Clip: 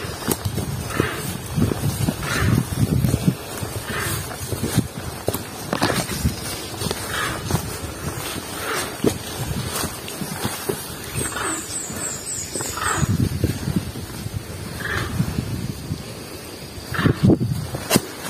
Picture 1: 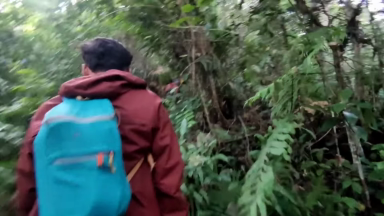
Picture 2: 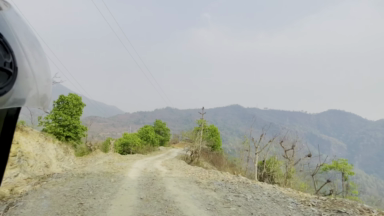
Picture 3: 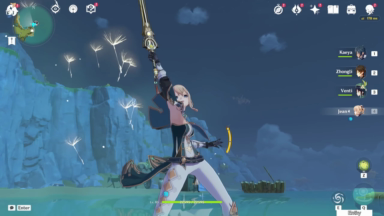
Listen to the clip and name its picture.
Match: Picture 1